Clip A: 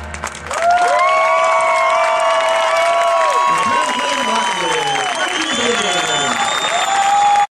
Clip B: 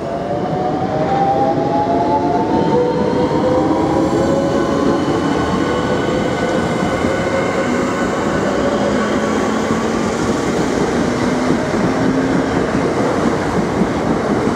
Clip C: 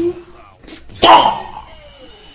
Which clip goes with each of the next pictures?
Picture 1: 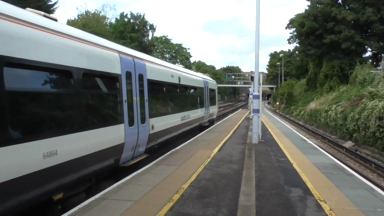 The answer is B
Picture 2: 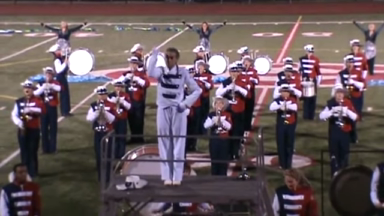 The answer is A